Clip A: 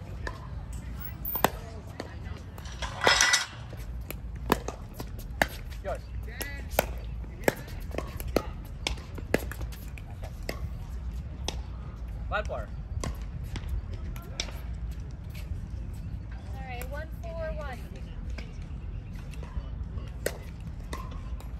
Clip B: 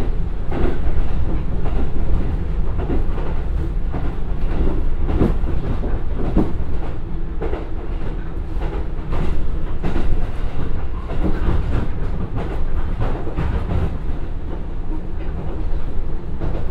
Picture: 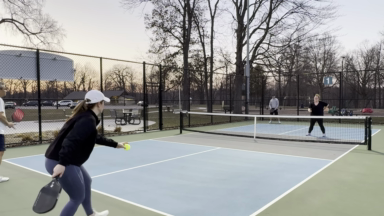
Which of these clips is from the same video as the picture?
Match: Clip A